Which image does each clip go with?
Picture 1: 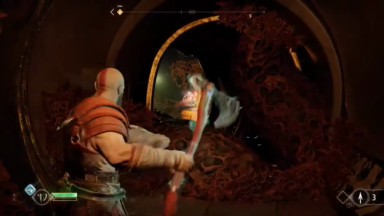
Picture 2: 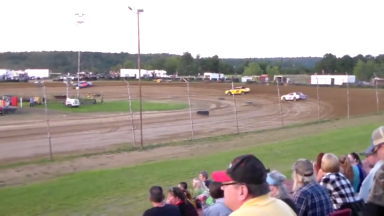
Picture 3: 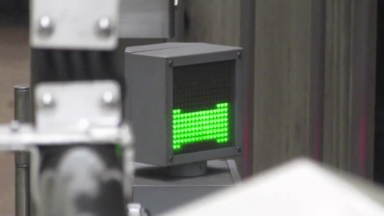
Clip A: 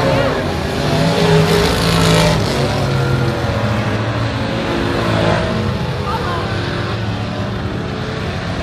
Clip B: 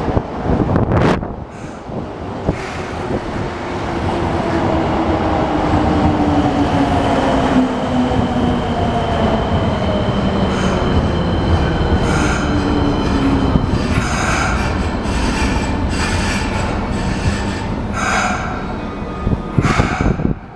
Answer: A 2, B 3